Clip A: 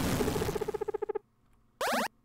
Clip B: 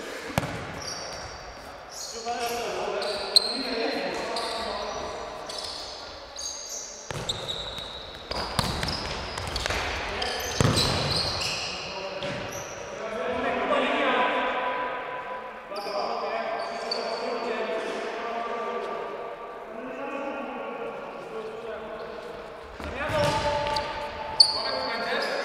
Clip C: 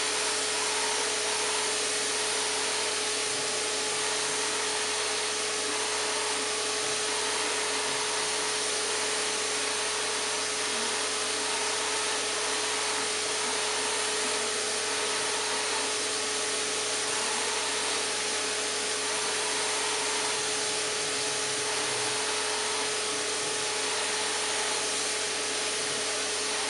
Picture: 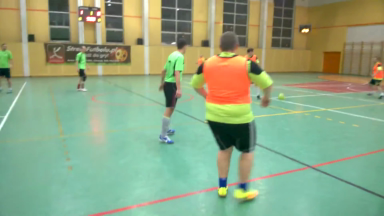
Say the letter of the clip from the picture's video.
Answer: B